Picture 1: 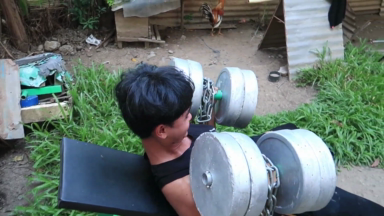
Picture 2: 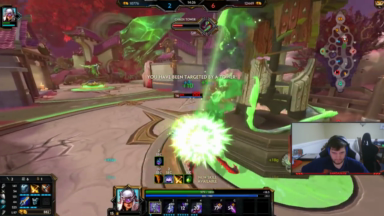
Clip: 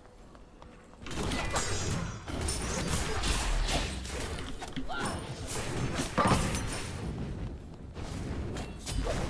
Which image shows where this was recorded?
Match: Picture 2